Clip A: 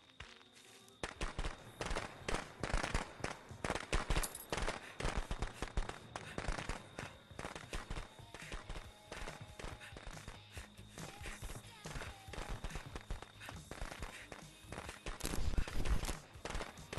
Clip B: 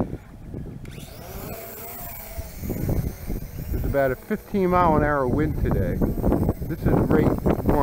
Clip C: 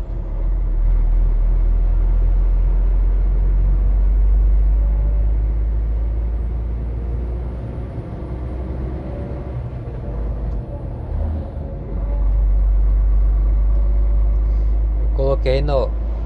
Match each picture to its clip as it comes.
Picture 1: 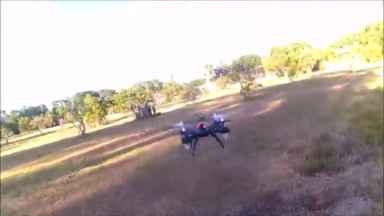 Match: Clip B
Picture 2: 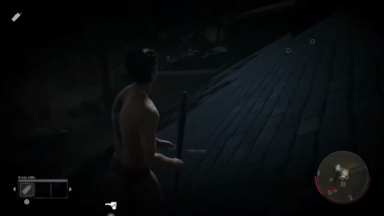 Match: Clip A